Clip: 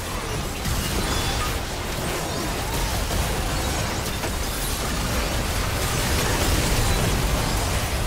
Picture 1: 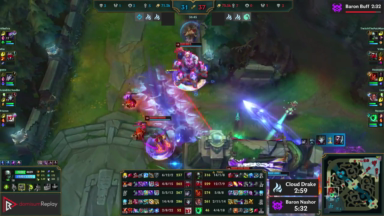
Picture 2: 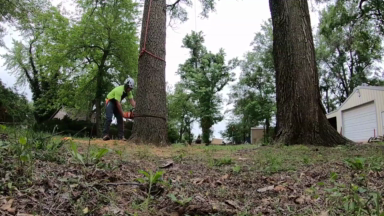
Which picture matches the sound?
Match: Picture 1